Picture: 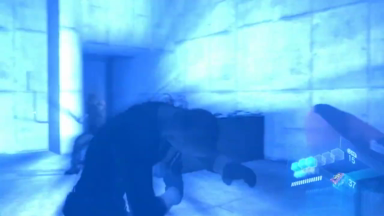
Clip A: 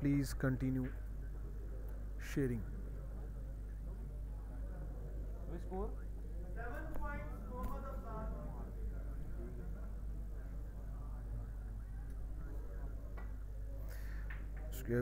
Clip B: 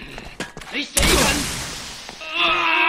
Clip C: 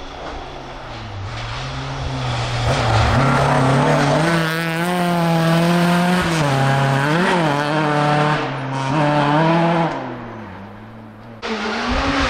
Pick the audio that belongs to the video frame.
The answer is B